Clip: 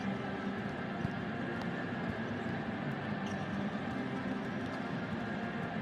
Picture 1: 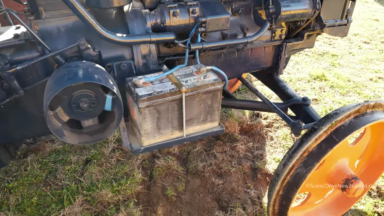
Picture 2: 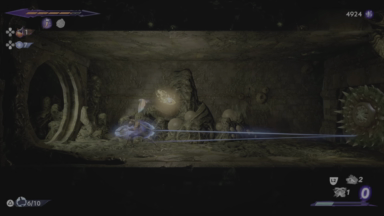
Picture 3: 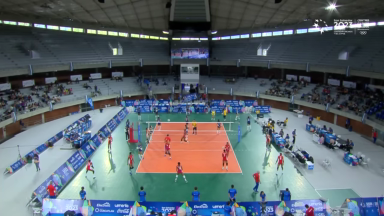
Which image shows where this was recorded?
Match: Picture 3